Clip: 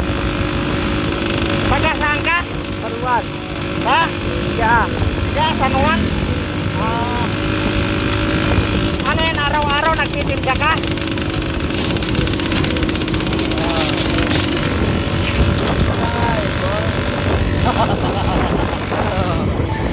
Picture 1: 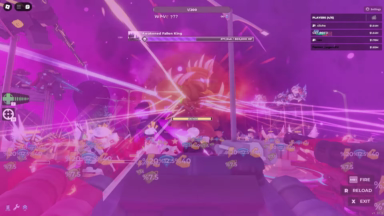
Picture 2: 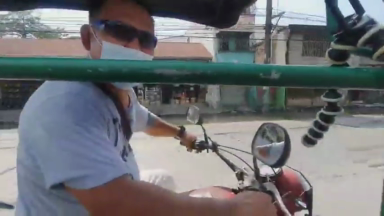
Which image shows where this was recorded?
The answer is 2